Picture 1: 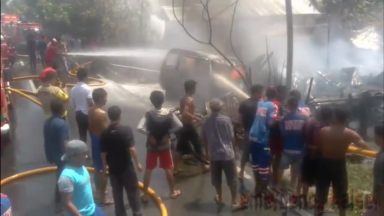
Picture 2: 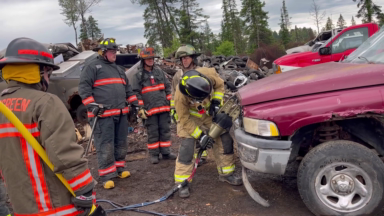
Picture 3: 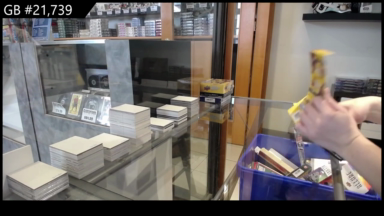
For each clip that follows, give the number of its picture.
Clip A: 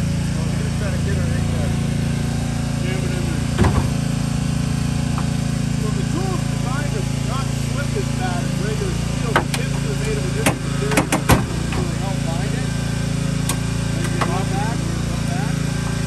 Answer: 2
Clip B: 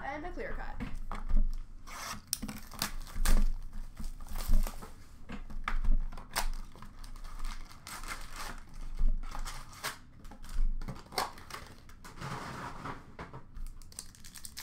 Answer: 3